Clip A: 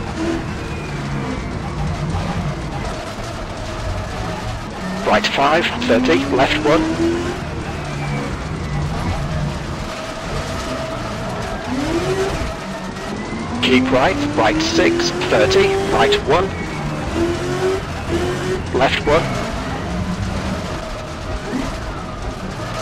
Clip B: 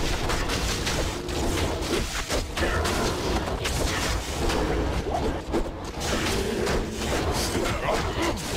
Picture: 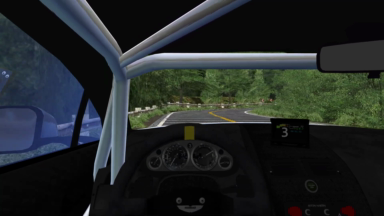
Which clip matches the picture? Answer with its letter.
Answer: A